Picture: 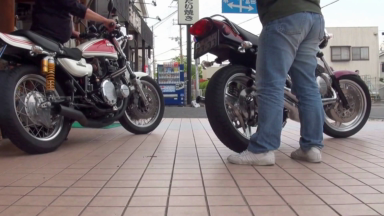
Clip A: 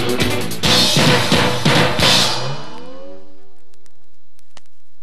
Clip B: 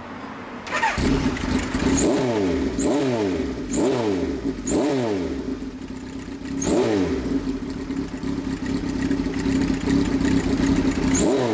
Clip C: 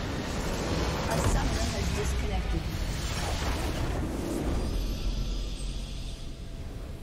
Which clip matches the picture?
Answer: B